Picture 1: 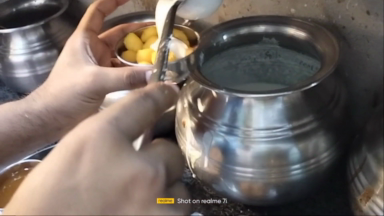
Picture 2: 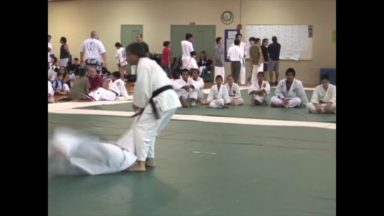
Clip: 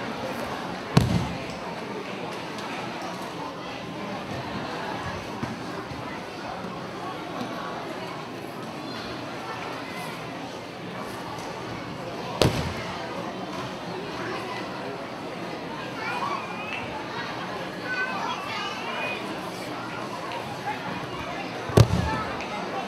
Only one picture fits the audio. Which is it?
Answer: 2